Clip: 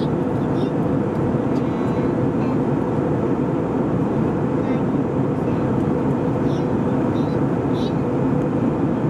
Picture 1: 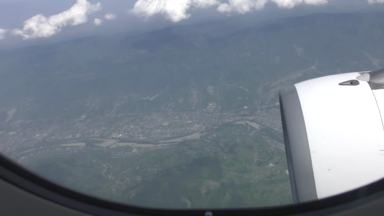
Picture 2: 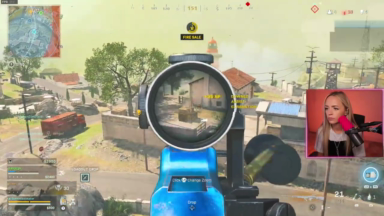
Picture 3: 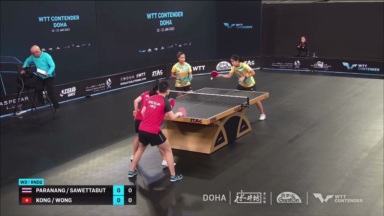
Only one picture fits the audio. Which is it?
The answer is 1